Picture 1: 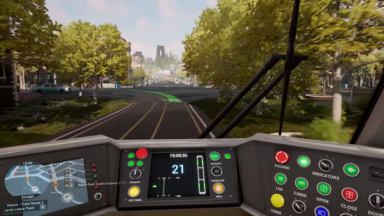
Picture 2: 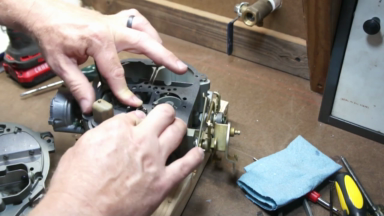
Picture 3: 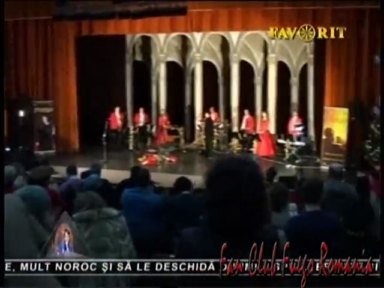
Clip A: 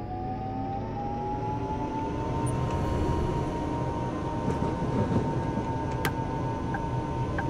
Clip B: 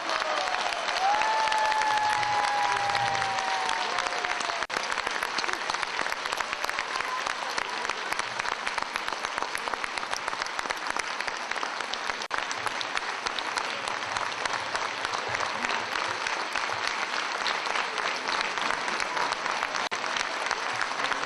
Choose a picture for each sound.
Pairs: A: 1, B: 3